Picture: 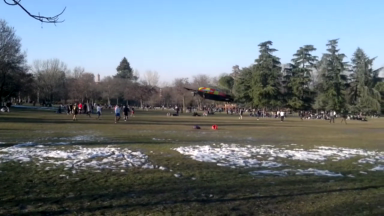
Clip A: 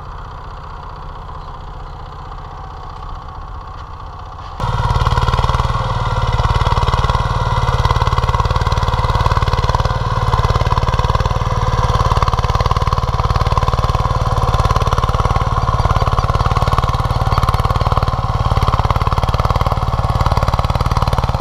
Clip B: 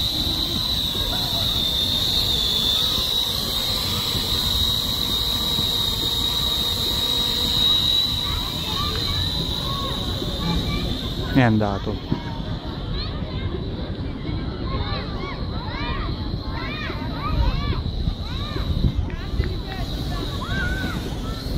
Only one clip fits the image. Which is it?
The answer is B